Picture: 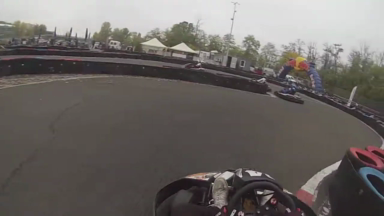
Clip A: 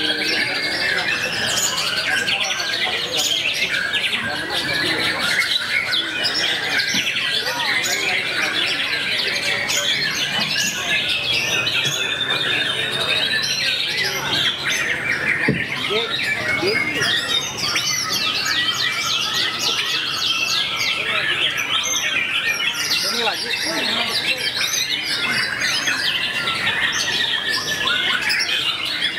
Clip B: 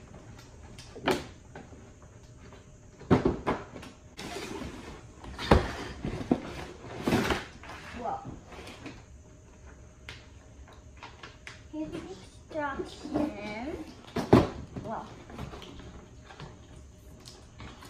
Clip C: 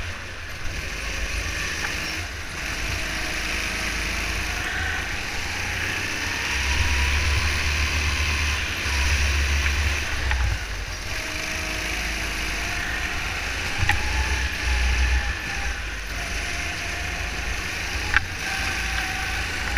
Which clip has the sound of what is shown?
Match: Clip C